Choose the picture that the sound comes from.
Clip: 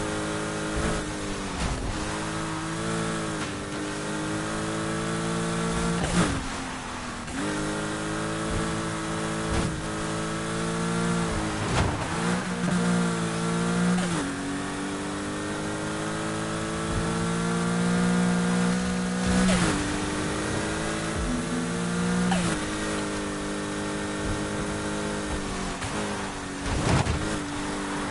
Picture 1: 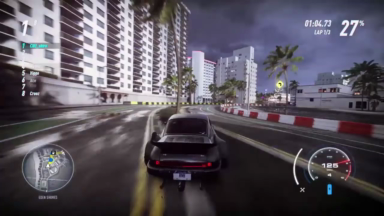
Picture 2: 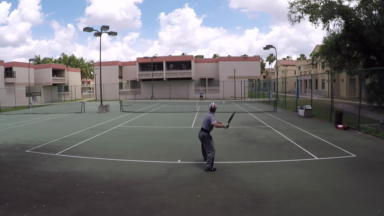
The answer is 1